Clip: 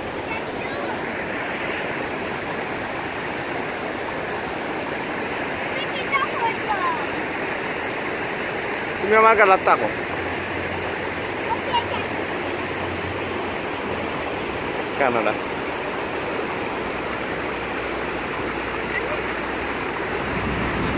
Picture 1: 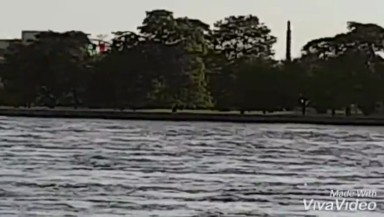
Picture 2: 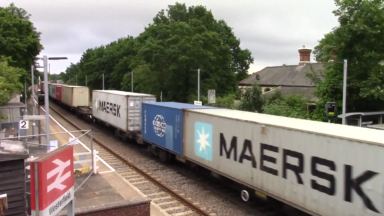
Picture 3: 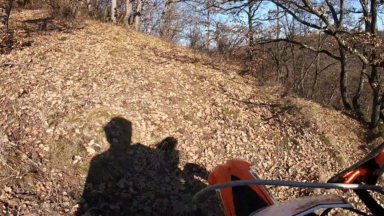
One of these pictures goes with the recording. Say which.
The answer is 1